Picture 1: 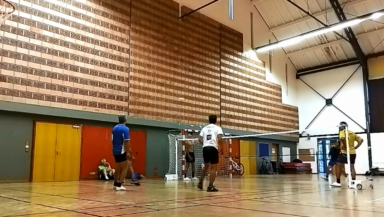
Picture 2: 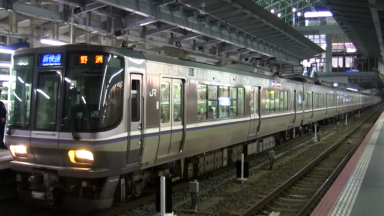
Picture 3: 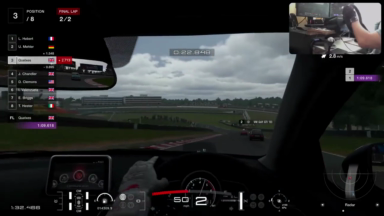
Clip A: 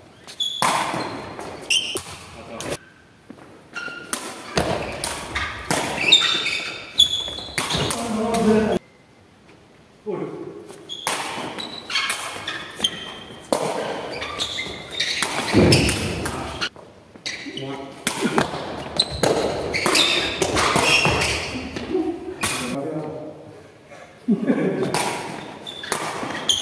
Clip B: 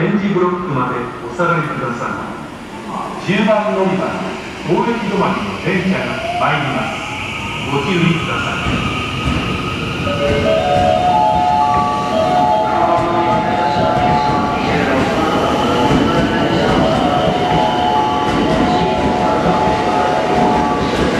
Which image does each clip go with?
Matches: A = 1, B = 2